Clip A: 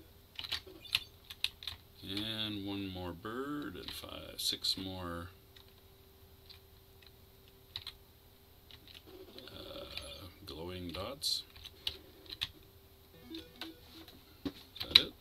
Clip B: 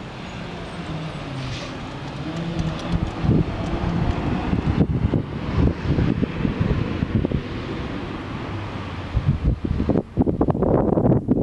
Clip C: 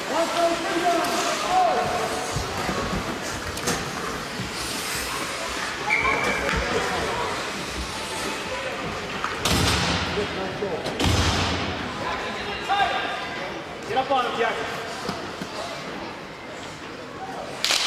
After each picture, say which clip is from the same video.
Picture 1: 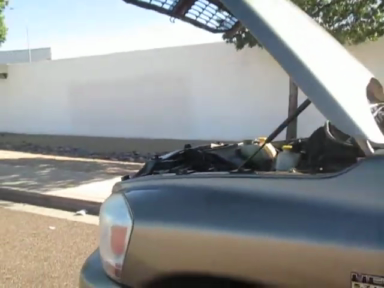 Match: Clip B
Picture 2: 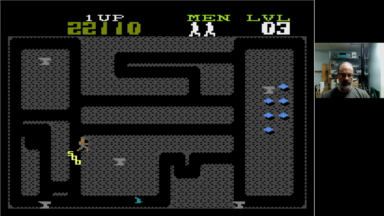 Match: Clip A